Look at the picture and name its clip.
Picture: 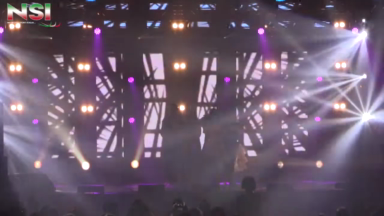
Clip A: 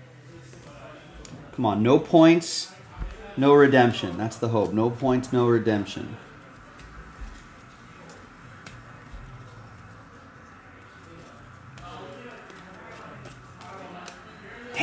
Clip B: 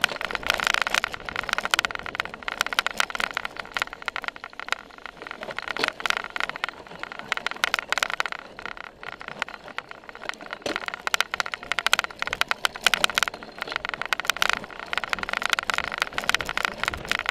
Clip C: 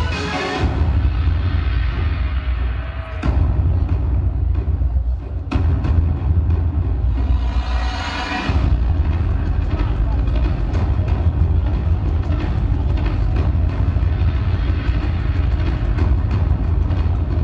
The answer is C